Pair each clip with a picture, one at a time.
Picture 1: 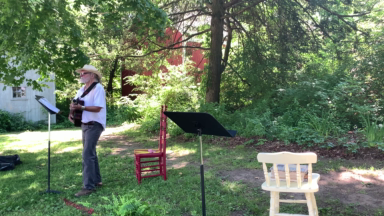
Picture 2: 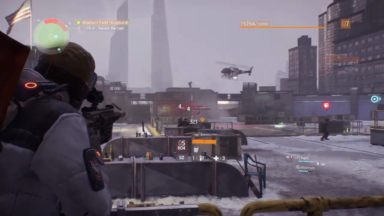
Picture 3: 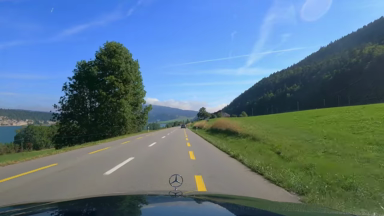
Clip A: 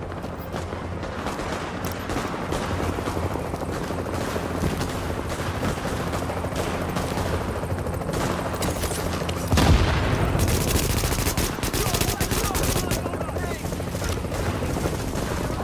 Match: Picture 2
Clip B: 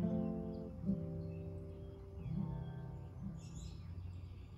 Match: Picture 1